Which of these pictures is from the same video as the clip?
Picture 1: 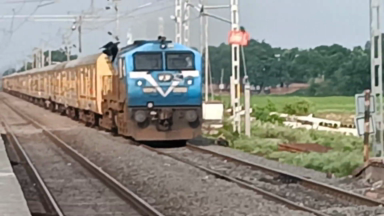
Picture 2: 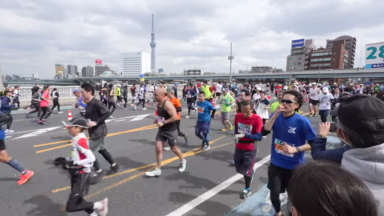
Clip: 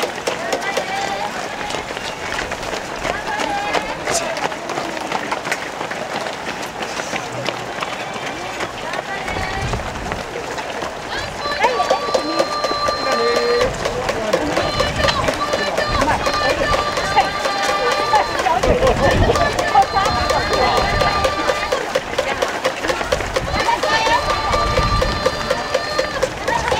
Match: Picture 2